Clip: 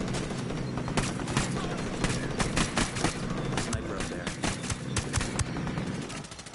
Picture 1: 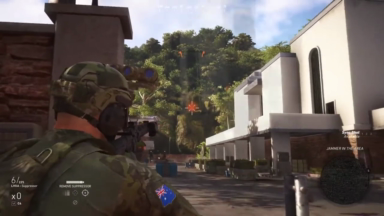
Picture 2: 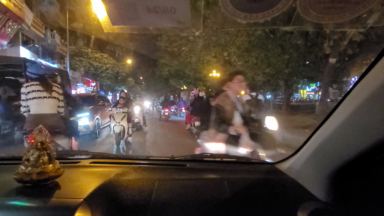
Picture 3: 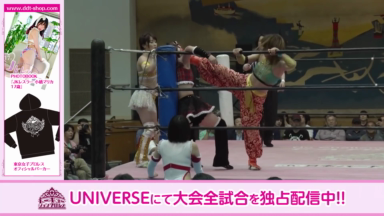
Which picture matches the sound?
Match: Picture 1